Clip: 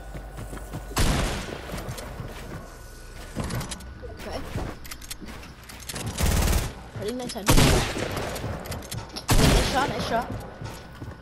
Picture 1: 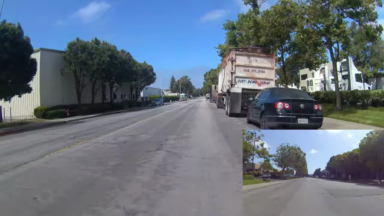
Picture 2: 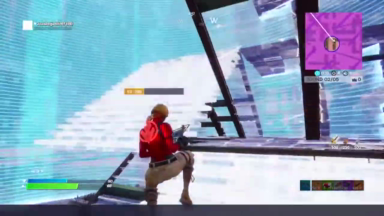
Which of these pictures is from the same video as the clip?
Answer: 2